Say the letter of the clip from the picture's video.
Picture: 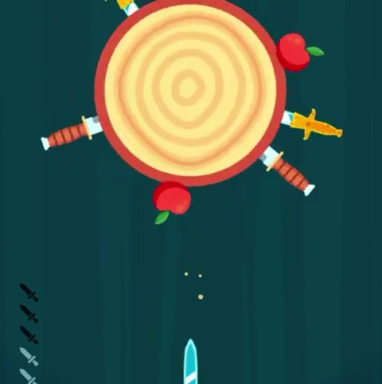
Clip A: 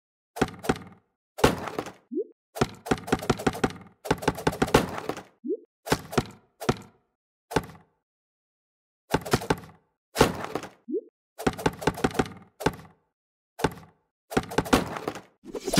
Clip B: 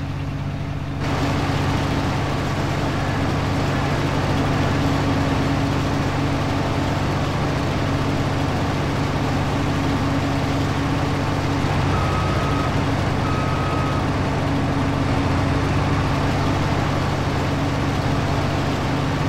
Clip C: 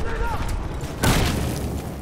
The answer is A